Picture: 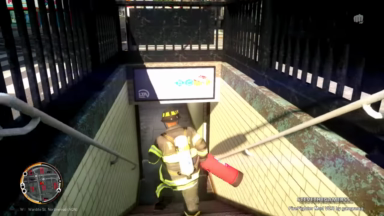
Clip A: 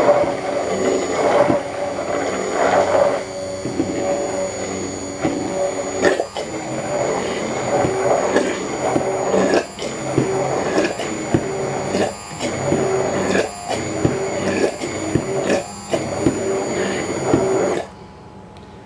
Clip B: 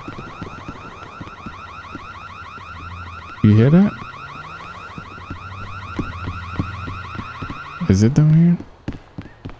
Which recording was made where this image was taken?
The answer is B